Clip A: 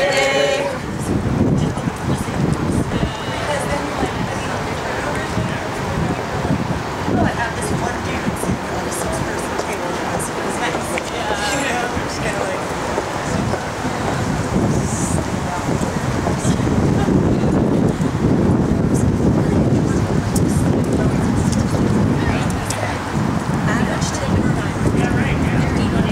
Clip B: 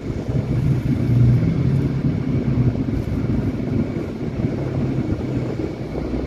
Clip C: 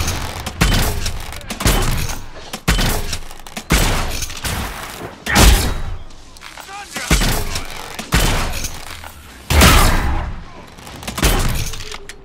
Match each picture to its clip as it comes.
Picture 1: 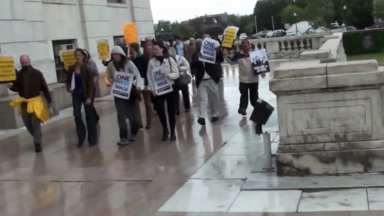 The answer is A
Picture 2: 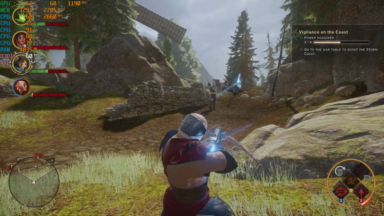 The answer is C